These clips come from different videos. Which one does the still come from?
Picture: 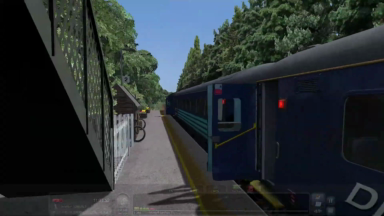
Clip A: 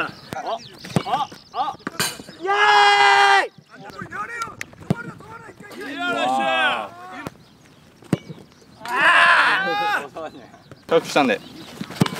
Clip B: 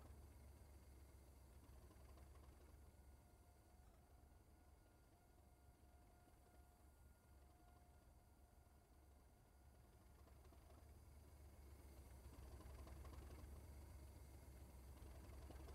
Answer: B